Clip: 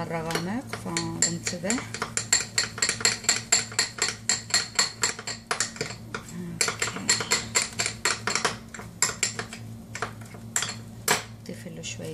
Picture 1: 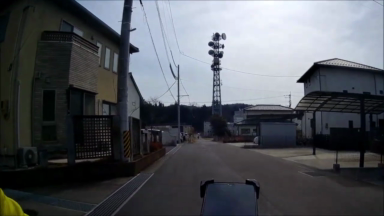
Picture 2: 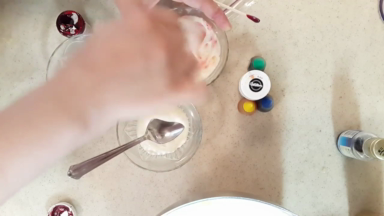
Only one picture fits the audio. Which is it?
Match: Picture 2